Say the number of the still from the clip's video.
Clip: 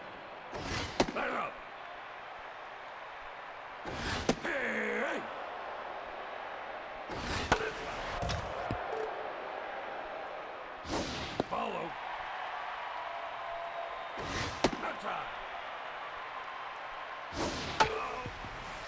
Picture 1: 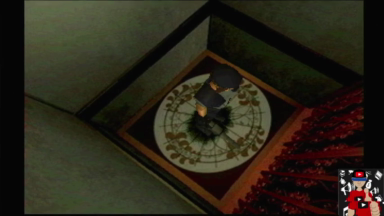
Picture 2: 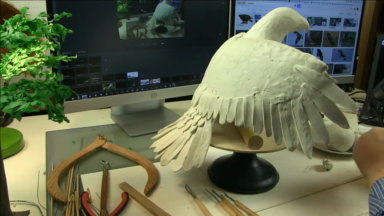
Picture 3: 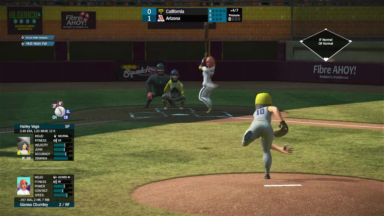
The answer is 3